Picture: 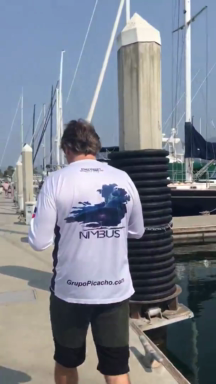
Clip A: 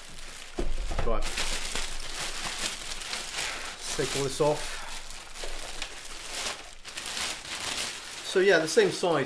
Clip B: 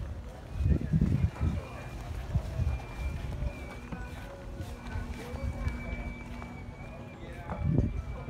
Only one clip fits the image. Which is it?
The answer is B